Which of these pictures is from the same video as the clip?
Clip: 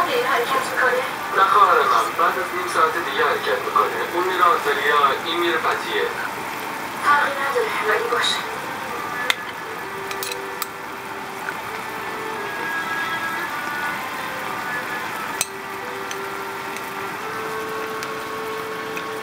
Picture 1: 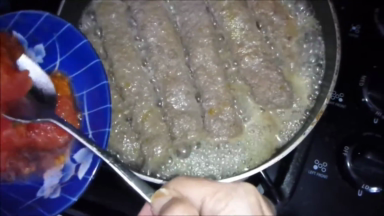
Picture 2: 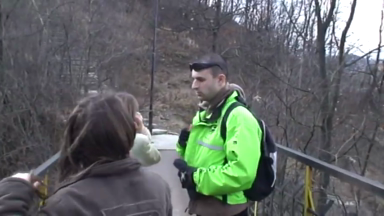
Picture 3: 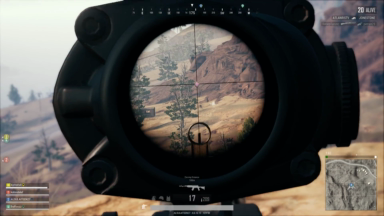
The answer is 1